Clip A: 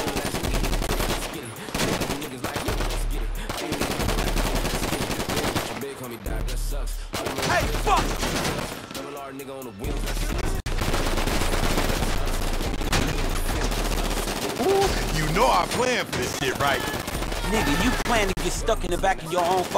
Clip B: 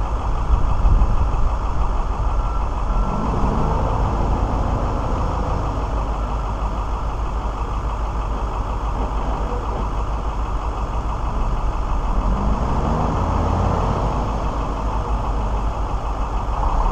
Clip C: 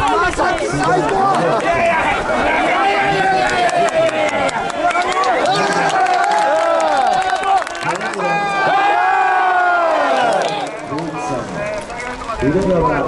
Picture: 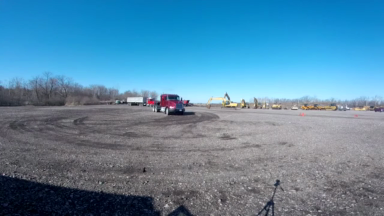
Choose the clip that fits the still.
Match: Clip B